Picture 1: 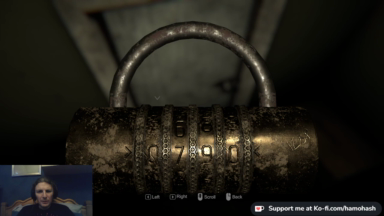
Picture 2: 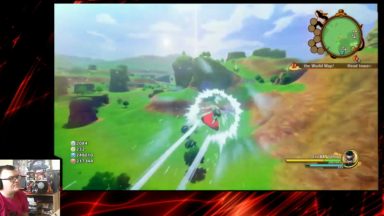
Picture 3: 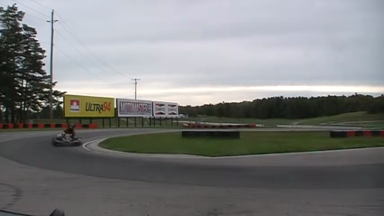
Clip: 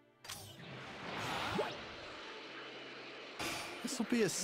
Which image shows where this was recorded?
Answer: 2